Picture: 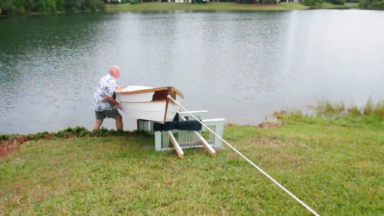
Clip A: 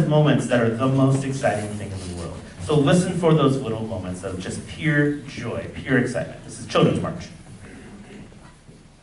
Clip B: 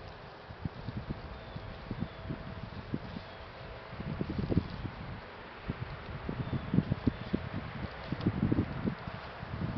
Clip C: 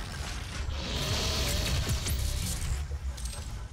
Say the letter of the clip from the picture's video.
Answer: B